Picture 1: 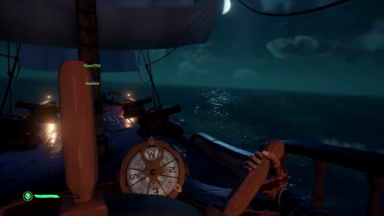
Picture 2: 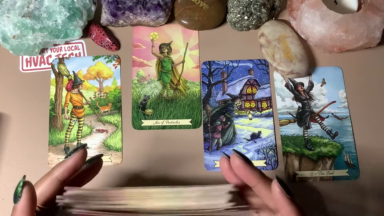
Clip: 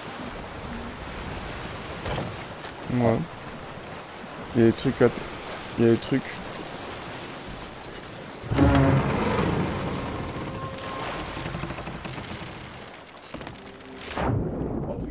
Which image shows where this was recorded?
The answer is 1